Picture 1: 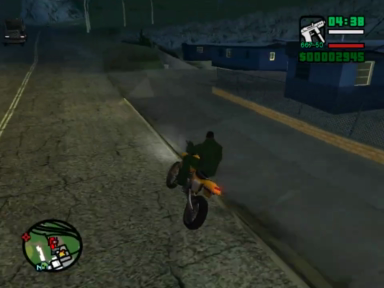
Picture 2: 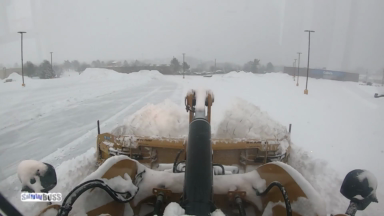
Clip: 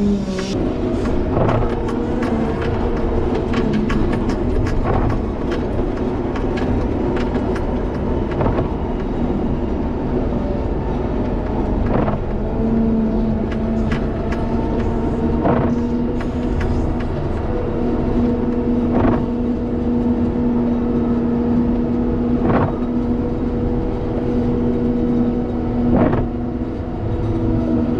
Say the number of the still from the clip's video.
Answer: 2